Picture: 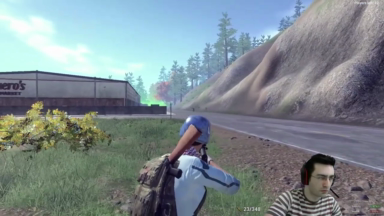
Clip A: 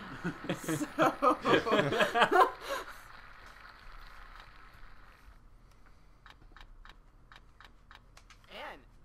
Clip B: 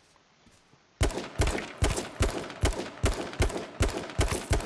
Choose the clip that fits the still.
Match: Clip B